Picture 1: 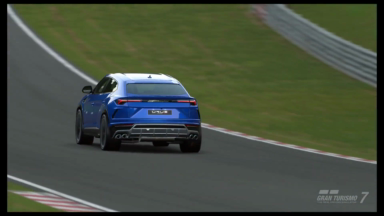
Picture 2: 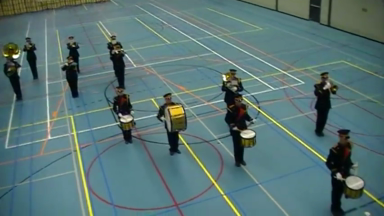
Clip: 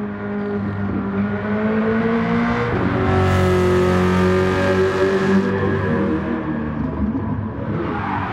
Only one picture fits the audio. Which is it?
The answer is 1